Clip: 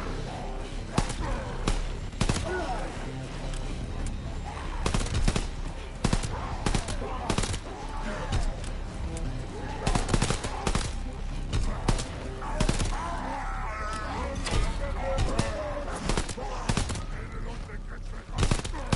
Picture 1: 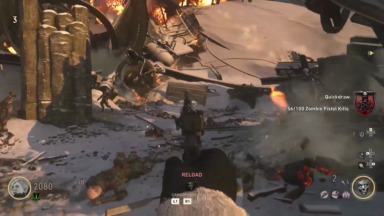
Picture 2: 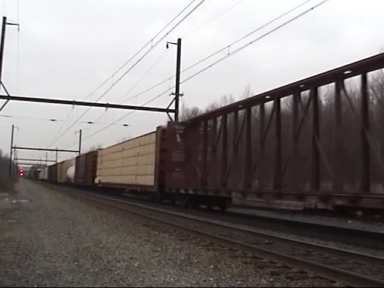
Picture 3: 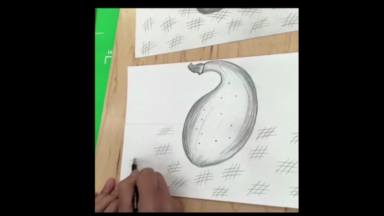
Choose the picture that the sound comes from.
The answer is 1